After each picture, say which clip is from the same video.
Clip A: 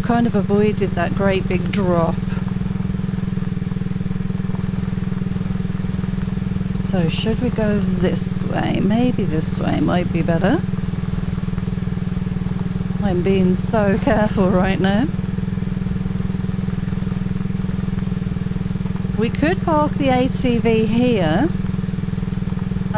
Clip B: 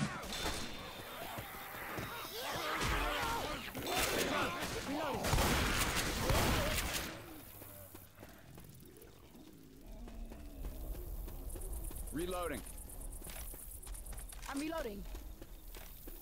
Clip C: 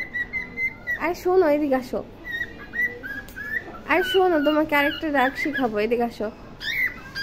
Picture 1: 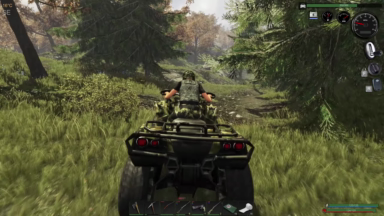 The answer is A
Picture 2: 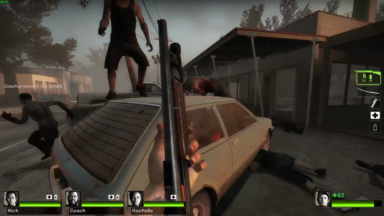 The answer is B